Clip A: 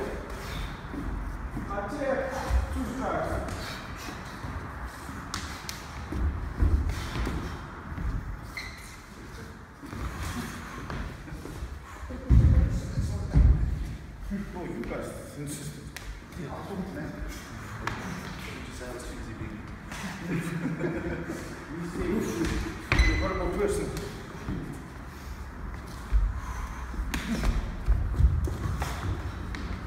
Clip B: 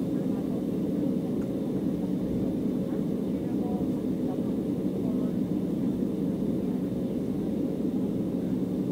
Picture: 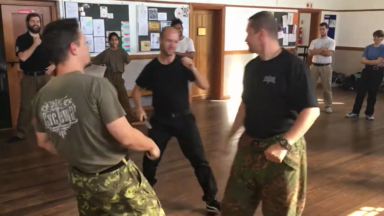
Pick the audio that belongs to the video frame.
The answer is A